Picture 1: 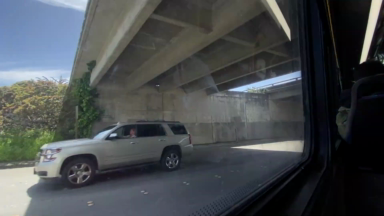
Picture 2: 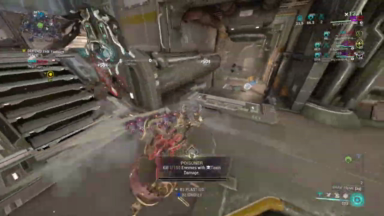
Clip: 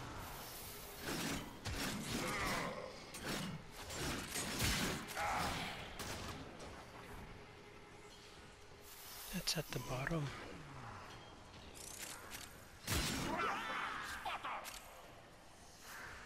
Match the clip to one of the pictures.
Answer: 2